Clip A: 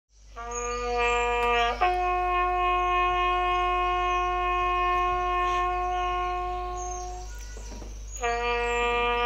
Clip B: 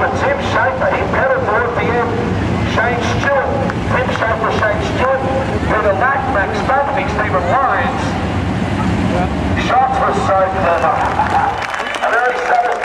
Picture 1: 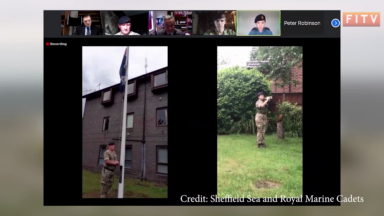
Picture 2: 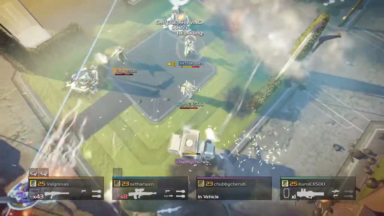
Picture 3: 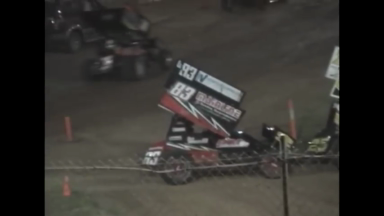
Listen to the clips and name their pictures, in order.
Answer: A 1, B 3